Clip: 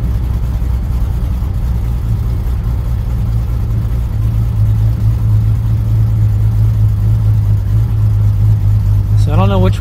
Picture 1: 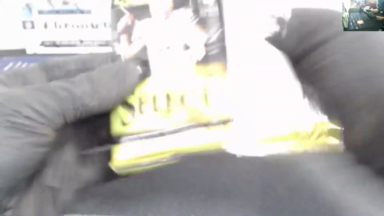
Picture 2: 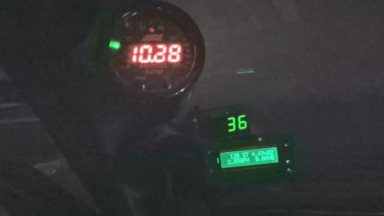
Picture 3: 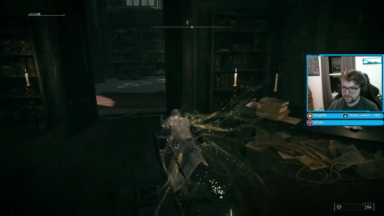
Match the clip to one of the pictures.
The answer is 2